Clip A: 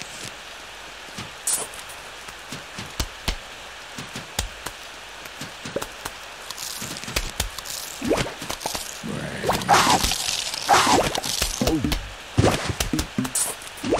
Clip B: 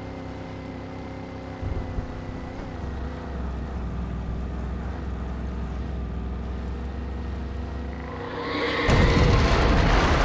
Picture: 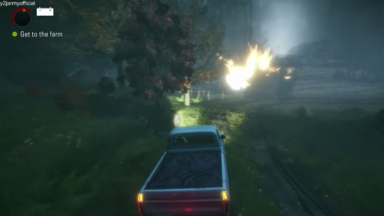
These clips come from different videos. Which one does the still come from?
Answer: B